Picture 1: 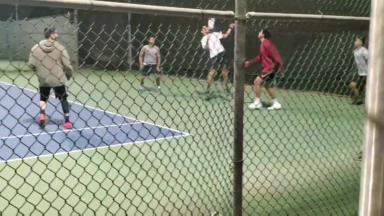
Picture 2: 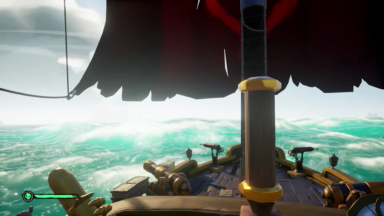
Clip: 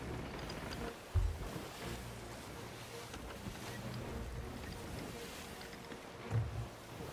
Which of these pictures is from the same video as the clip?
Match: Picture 2